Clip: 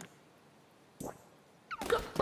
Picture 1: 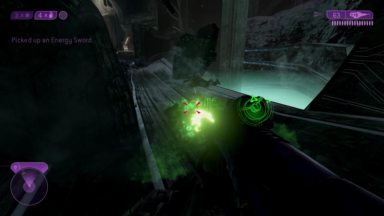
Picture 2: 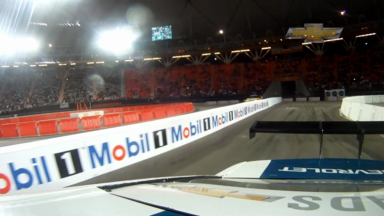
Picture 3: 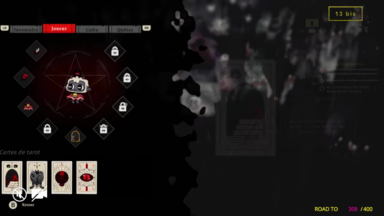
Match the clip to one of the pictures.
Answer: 3